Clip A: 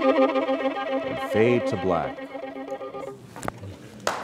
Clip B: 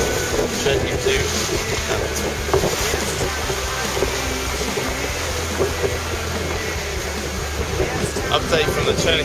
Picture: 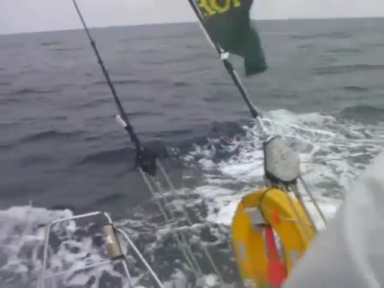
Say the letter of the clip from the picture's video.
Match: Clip B